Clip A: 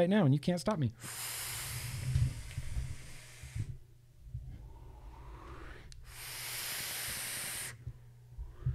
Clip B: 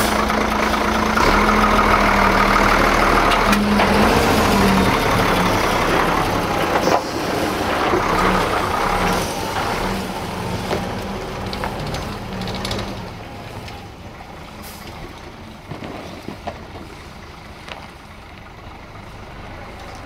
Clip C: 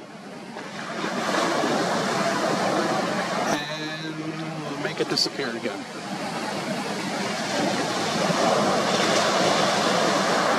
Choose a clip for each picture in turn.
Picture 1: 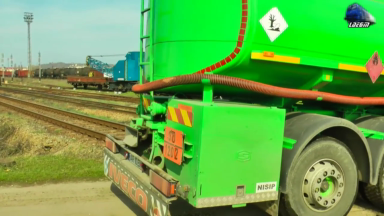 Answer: B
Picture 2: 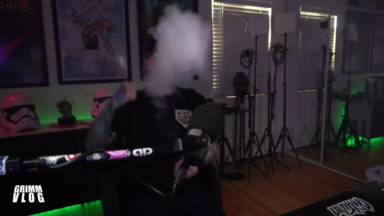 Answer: A